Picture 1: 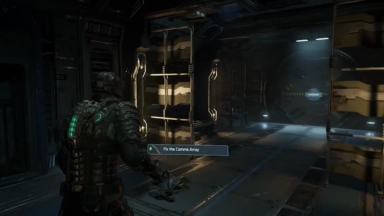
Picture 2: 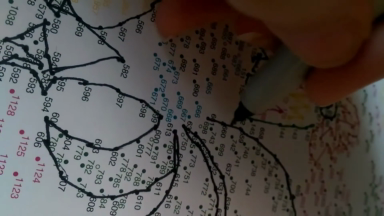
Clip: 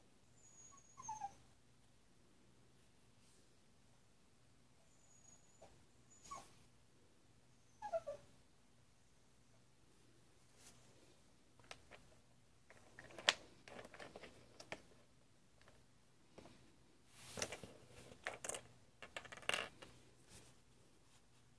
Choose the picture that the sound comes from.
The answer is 2